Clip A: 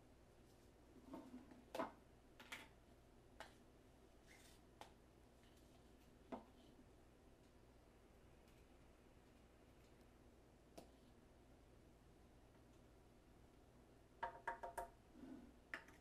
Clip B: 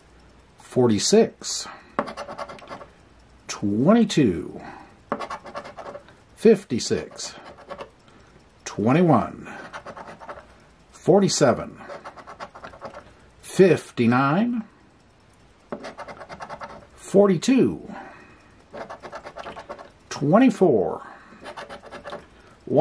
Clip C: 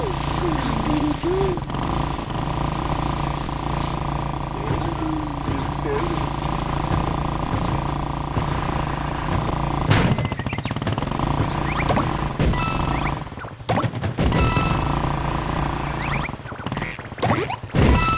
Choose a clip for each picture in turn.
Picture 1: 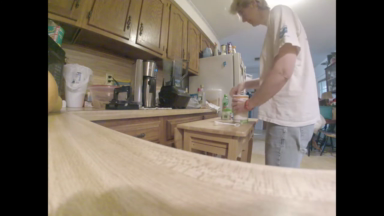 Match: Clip A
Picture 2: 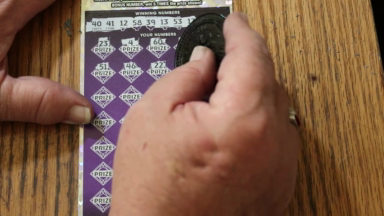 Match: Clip B